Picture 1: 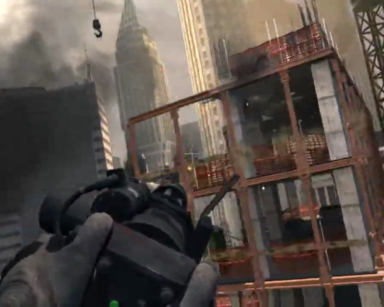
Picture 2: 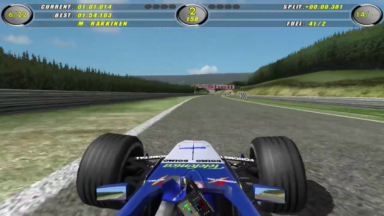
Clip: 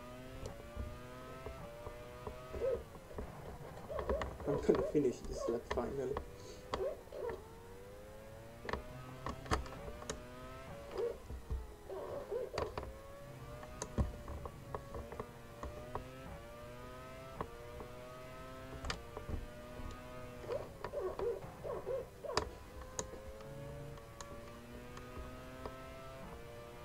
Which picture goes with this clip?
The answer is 2